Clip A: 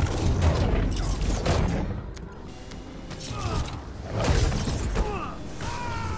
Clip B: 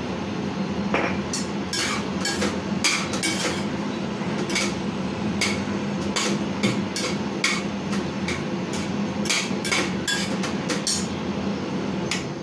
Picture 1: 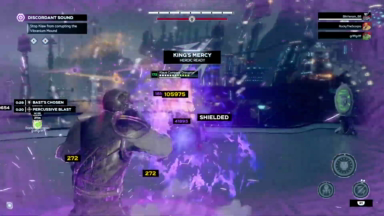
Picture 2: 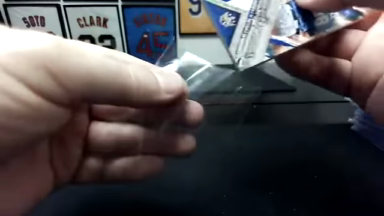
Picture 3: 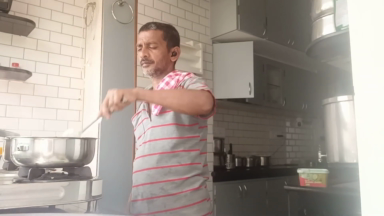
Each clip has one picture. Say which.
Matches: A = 1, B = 3